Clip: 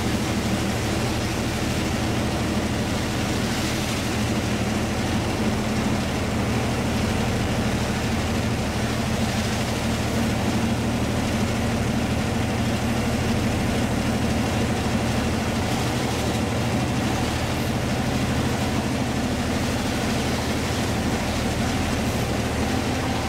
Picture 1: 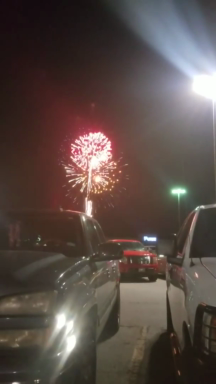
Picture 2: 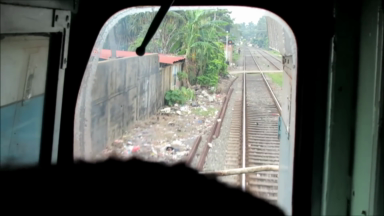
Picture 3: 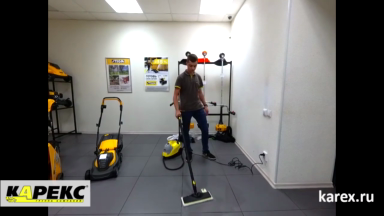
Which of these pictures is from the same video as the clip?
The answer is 2